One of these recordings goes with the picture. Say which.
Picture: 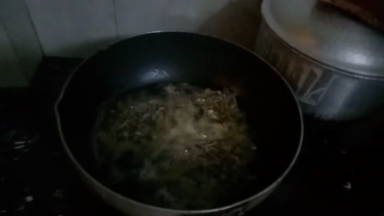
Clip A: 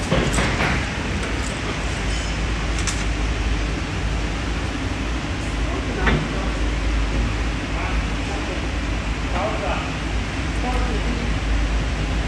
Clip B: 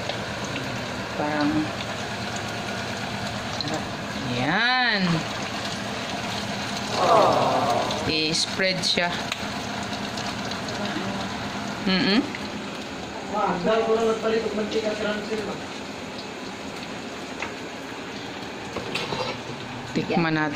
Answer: B